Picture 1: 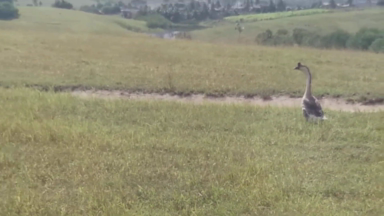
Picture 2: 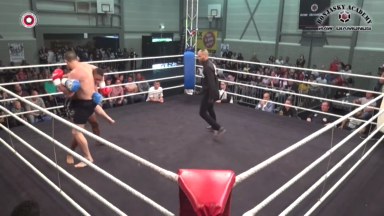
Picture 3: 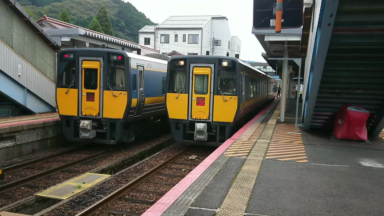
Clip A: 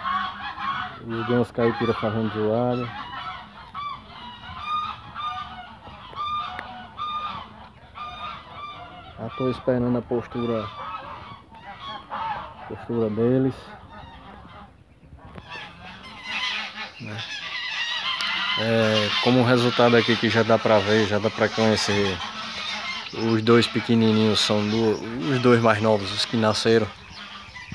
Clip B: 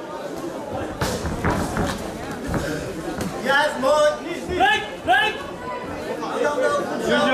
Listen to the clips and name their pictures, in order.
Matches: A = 1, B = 2